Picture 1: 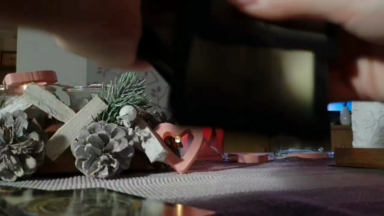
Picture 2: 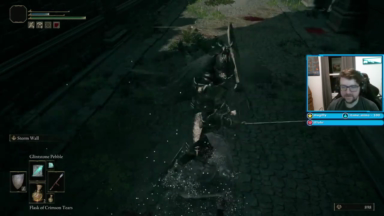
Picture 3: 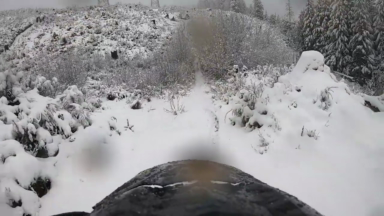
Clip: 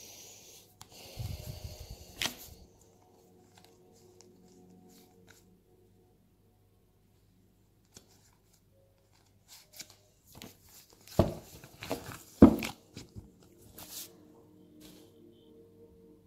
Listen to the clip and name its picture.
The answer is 1